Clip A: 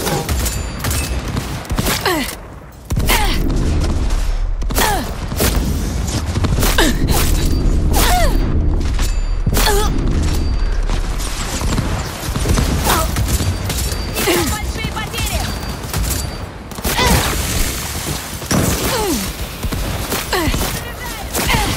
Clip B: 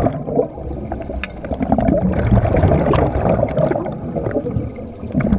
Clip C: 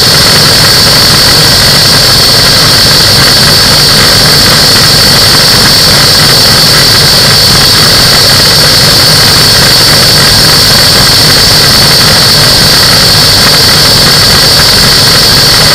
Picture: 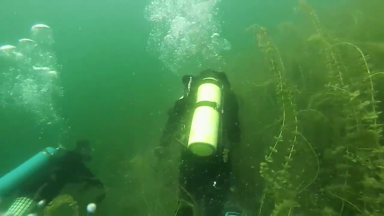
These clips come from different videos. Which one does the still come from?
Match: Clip B